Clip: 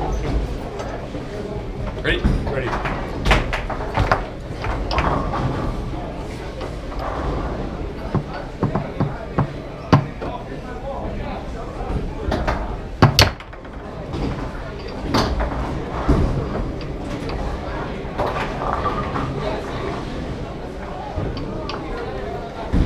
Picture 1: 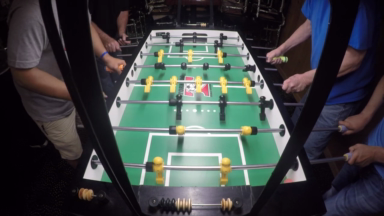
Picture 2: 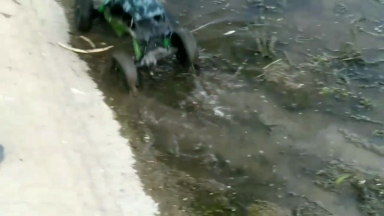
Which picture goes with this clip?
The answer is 1